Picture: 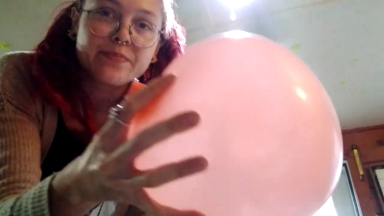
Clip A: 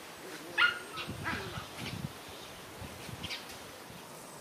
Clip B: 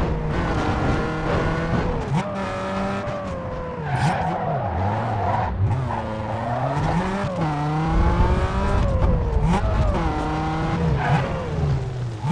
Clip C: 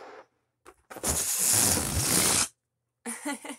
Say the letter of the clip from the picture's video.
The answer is C